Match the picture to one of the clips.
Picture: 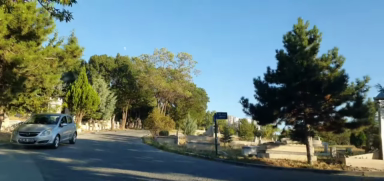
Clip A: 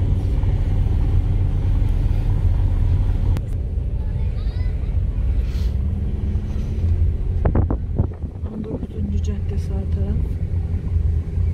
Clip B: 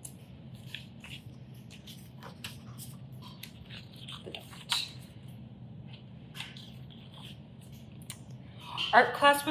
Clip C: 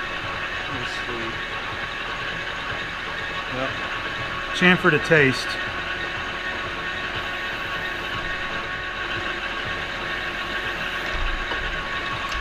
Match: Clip A